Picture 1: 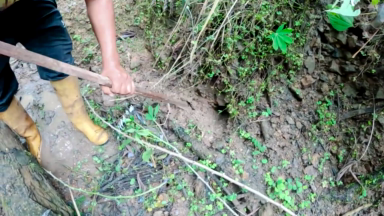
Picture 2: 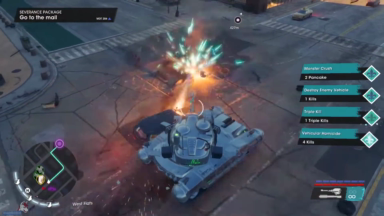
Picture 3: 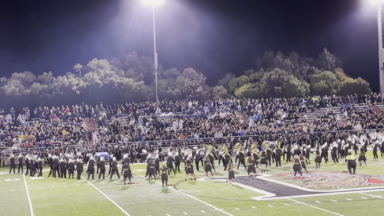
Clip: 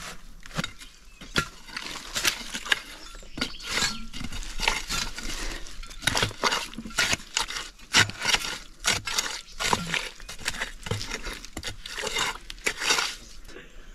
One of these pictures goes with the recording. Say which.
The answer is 1